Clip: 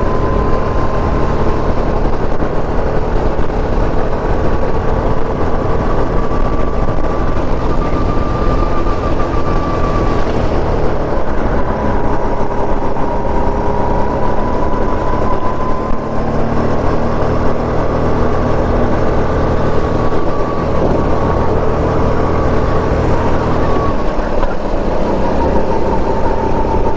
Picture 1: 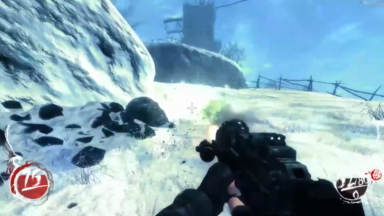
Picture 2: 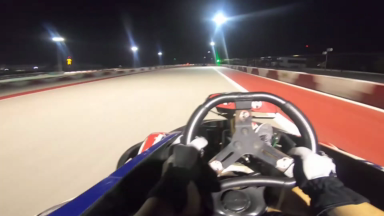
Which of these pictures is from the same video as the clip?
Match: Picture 2